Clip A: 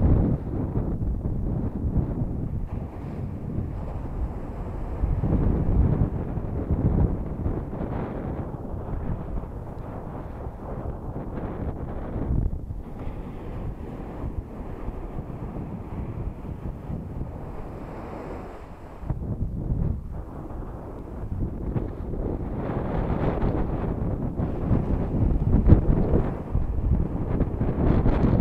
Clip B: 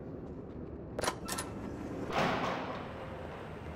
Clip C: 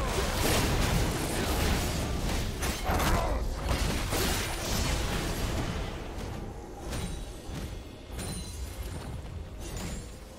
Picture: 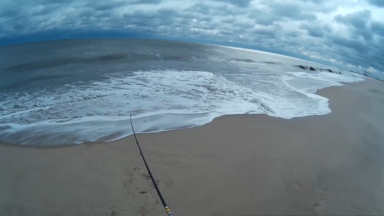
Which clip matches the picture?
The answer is A